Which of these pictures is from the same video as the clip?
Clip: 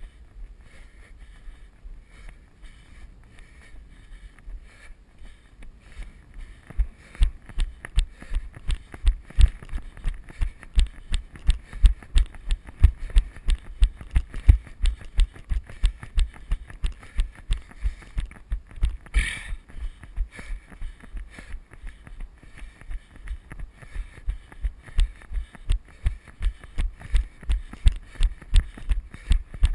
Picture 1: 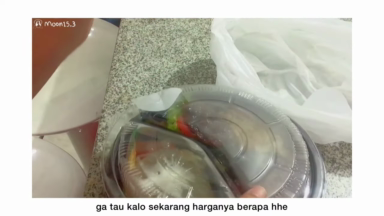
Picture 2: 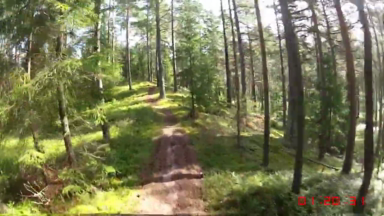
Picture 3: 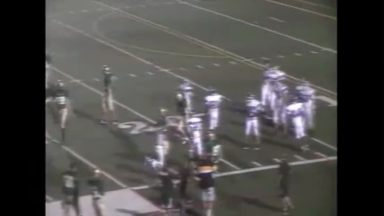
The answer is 2